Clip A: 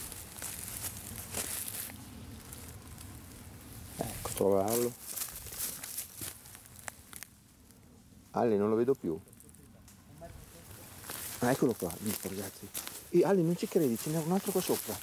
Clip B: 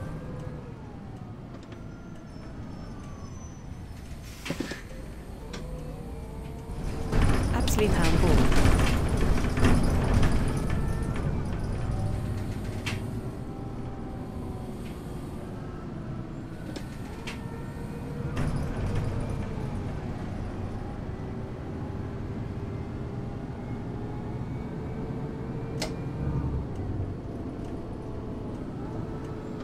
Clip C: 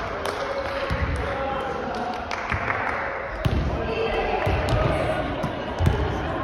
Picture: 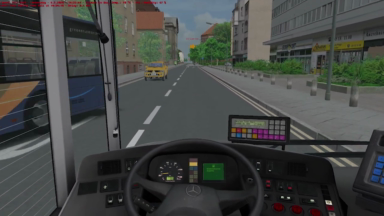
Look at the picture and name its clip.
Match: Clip B